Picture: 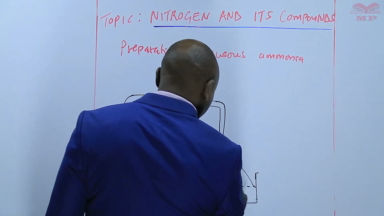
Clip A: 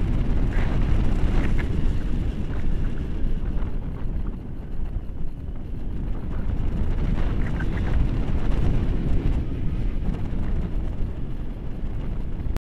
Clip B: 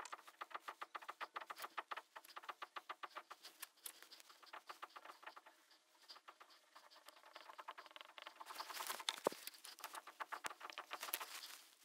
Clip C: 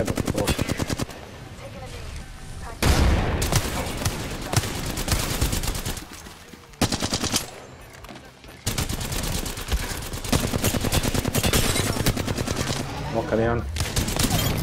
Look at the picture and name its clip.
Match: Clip B